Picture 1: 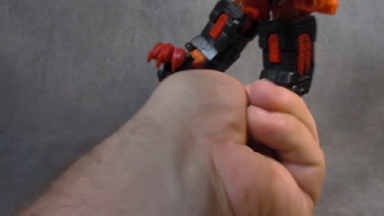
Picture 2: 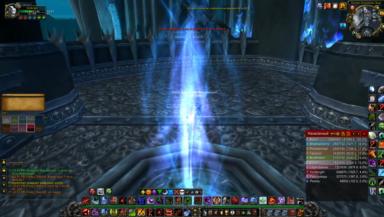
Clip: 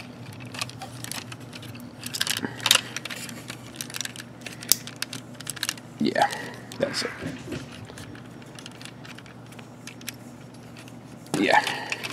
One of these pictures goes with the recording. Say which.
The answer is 1